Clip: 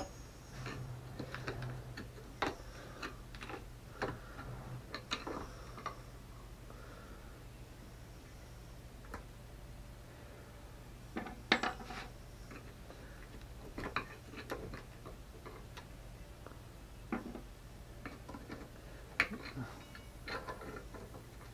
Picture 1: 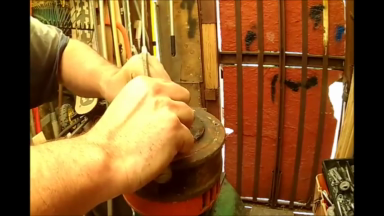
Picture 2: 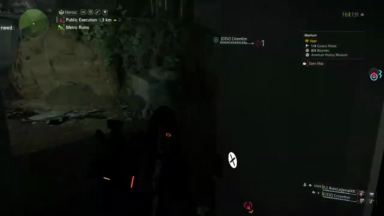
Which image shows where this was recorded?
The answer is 1